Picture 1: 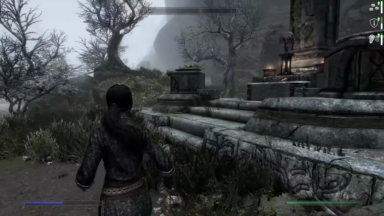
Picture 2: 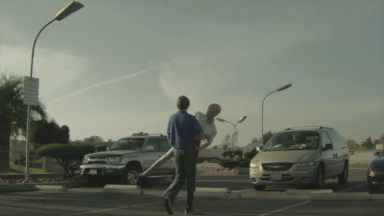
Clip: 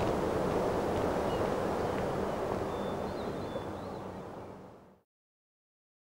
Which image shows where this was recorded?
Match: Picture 2